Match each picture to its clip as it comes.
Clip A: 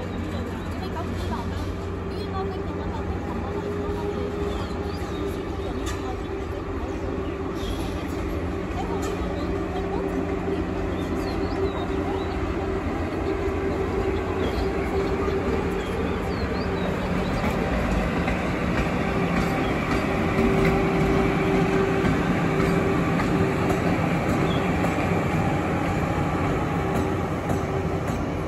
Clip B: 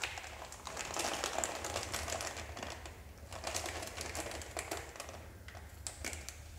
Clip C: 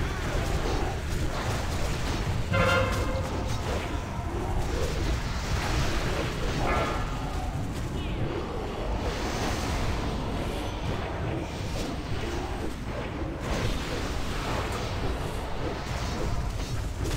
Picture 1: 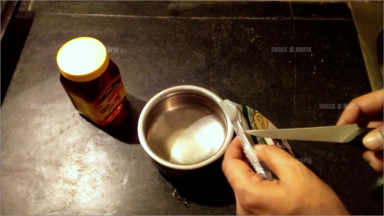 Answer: B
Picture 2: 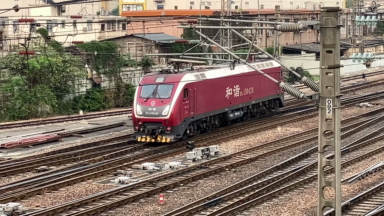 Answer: A